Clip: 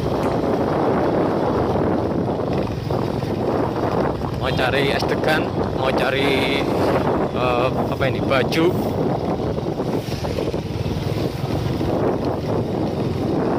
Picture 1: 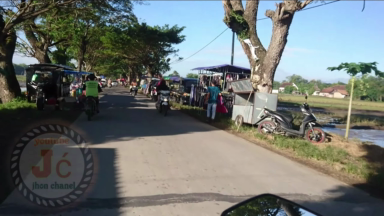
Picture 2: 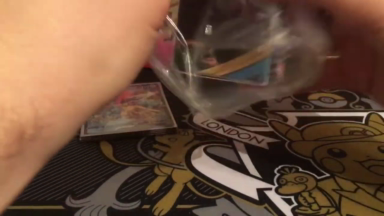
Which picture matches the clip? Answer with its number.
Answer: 1